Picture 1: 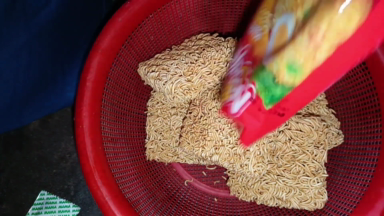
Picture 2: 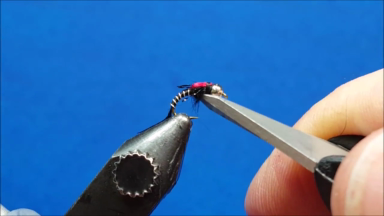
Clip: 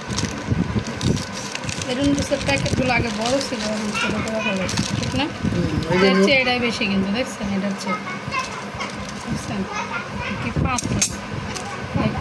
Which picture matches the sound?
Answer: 1